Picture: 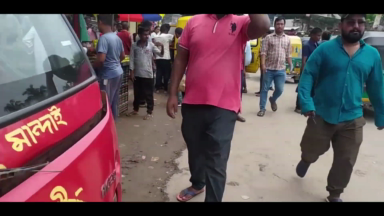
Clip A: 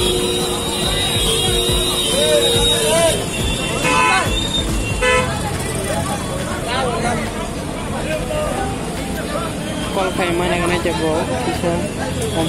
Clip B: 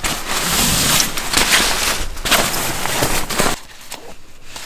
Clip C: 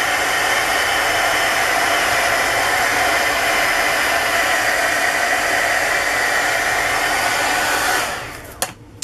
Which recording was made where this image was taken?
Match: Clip A